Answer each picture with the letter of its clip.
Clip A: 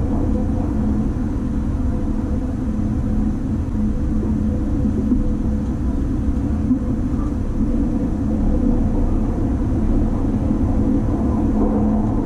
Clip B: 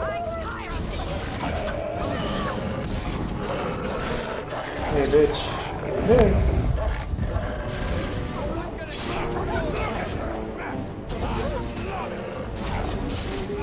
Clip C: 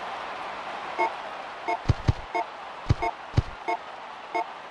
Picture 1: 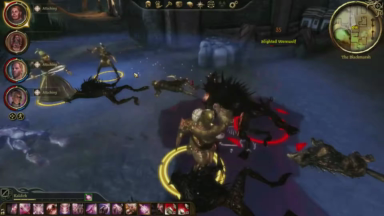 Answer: B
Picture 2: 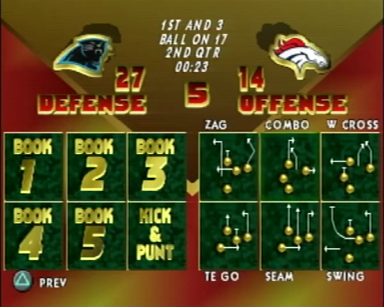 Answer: C